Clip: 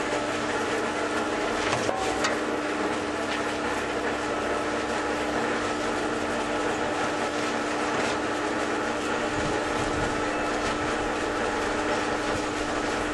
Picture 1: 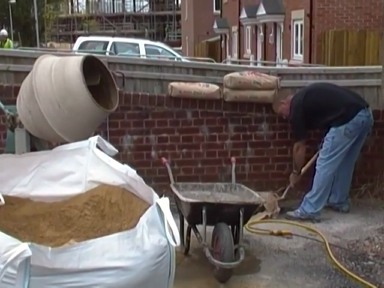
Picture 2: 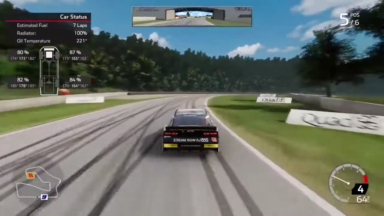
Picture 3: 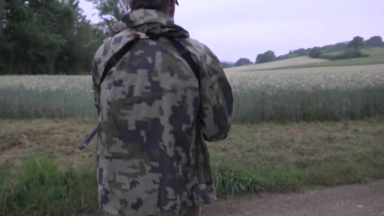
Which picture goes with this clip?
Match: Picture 1